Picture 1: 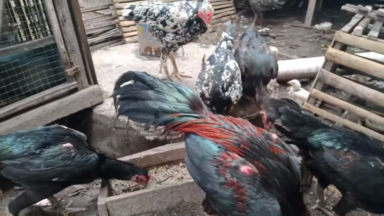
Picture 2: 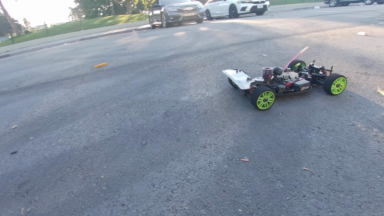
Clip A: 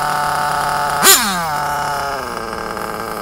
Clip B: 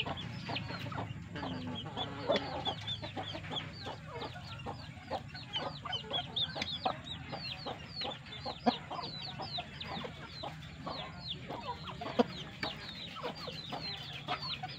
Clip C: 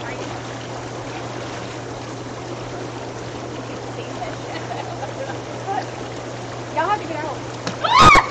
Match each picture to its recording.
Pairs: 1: B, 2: A